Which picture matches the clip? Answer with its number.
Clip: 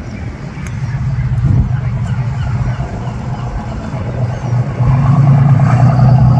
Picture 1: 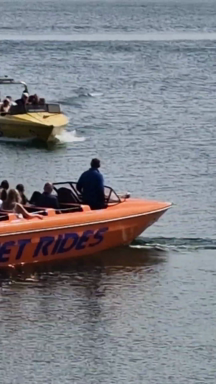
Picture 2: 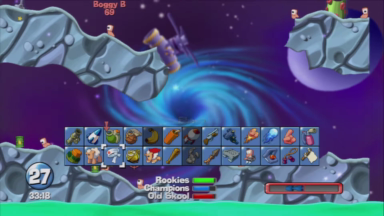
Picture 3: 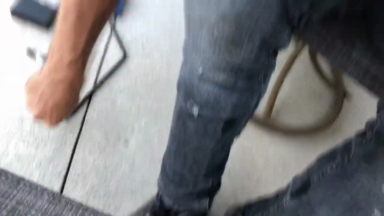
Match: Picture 1